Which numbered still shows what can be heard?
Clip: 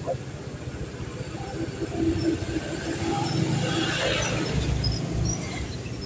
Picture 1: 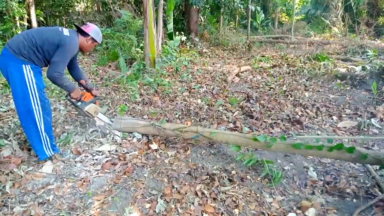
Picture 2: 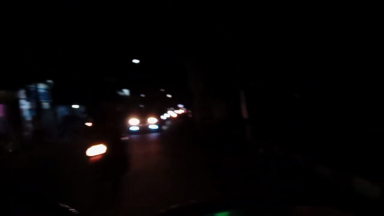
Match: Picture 2